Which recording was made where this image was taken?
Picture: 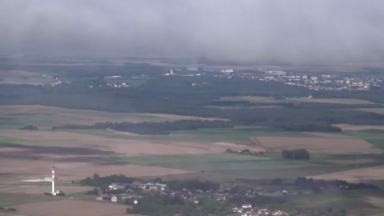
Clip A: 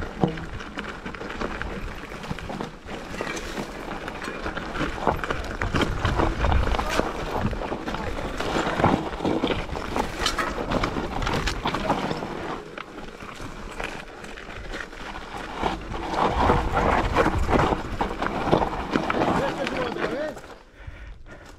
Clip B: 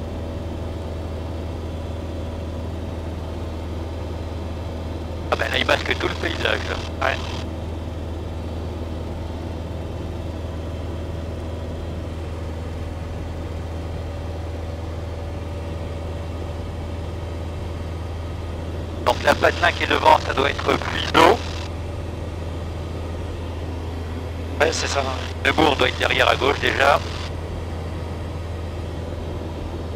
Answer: B